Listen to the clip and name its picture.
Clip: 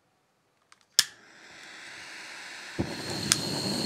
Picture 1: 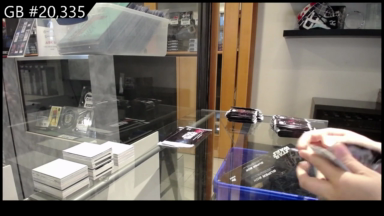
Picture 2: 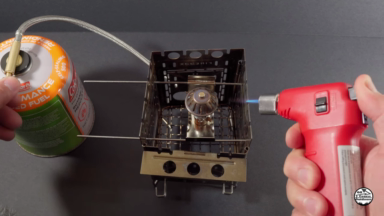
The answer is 2